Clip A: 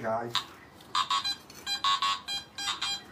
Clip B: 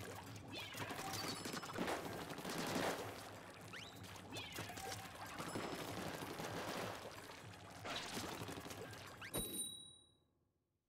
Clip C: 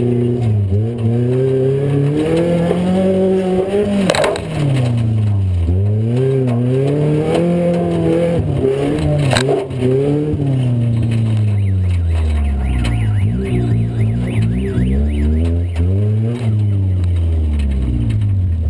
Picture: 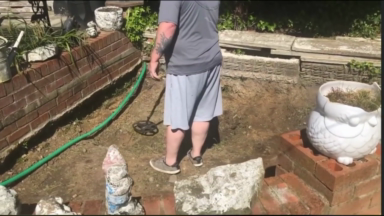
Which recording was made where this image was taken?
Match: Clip A